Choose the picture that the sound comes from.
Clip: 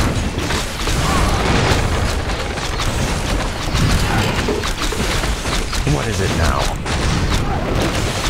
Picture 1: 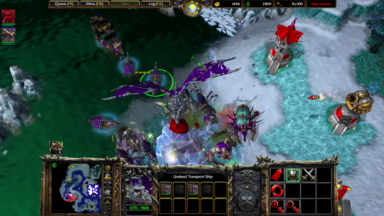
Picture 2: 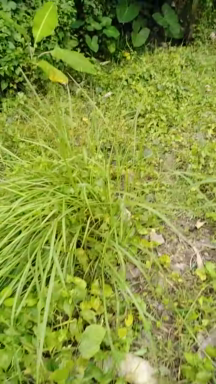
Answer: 1